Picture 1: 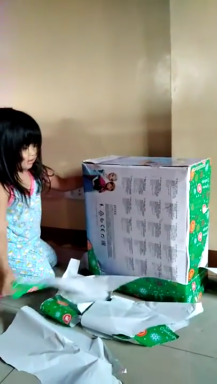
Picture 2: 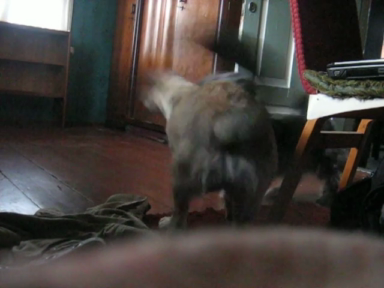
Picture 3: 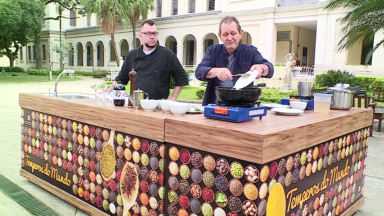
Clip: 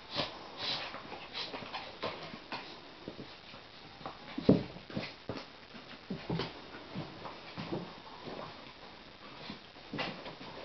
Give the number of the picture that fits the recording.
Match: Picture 2